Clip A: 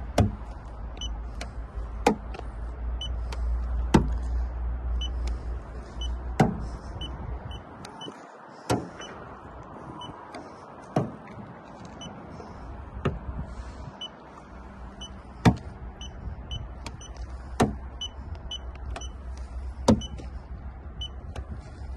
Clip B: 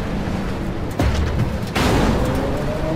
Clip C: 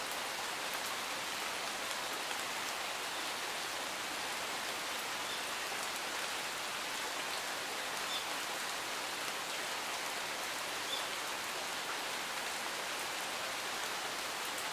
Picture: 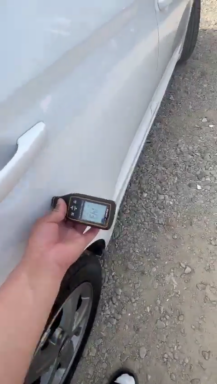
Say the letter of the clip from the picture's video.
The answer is A